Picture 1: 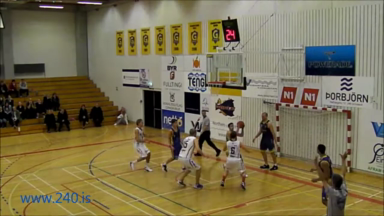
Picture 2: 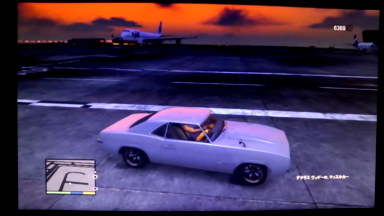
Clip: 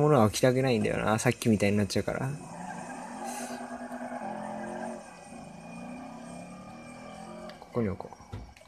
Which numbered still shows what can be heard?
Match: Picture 2